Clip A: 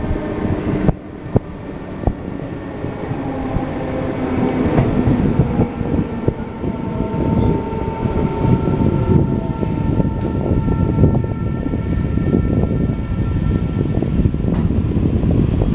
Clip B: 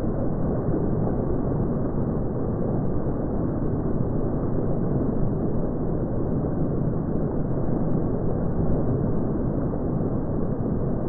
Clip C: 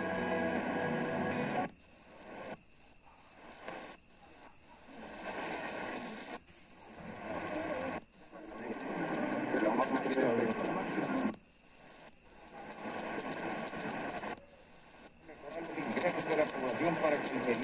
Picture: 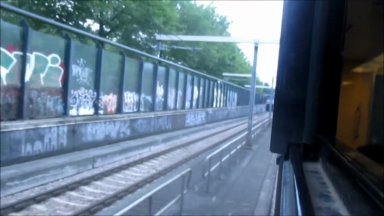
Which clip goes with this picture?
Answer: A